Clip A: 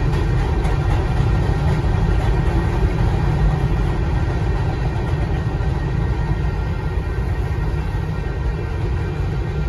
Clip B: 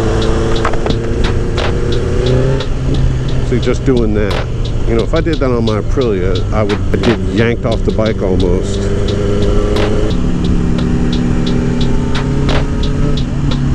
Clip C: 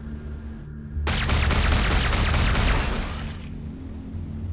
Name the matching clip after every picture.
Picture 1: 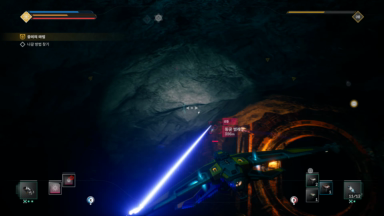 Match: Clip C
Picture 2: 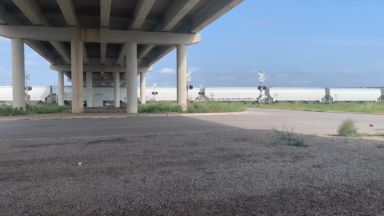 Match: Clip A